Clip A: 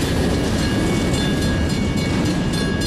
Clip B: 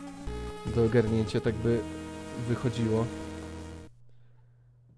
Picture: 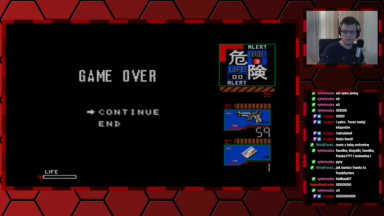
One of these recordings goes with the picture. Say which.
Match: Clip B